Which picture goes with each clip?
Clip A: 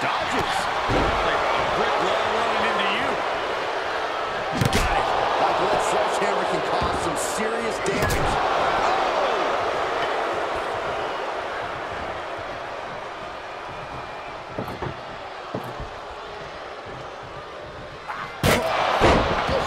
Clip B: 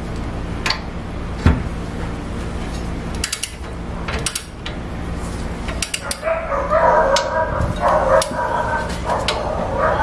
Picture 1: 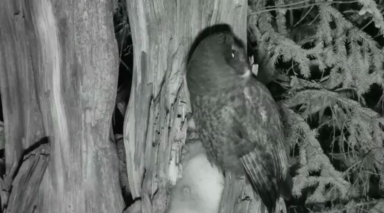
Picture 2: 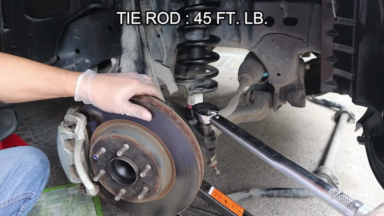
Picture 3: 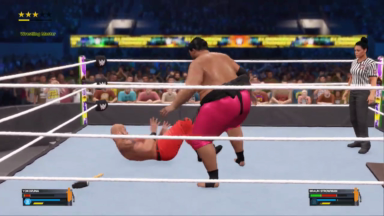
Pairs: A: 3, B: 2